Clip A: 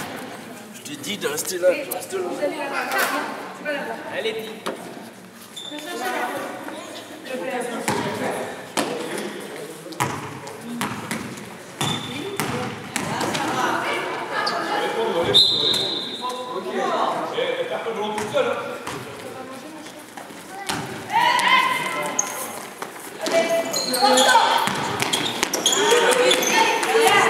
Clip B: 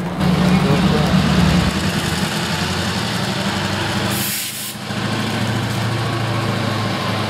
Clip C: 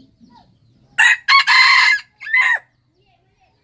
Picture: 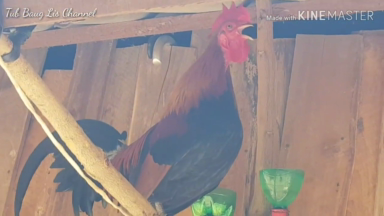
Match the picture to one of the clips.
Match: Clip C